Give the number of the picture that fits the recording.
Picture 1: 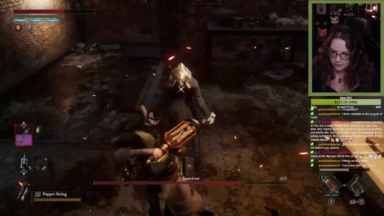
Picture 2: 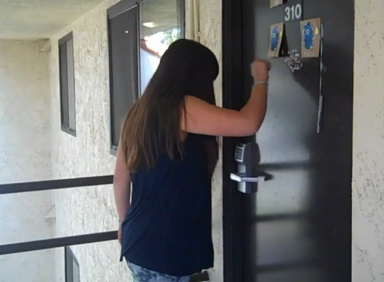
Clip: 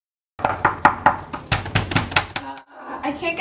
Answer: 2